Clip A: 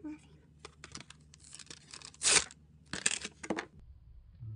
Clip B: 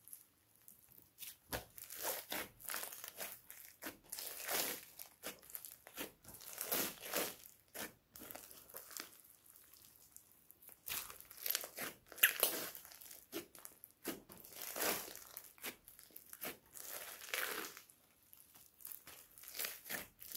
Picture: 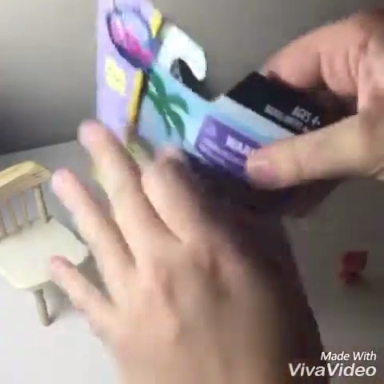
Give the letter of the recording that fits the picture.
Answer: A